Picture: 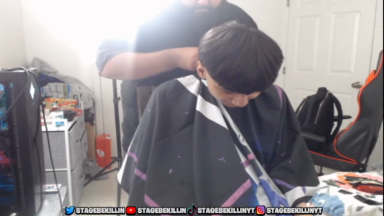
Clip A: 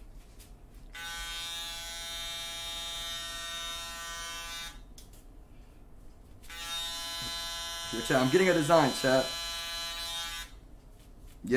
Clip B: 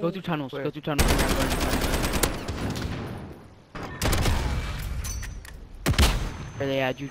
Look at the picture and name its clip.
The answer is A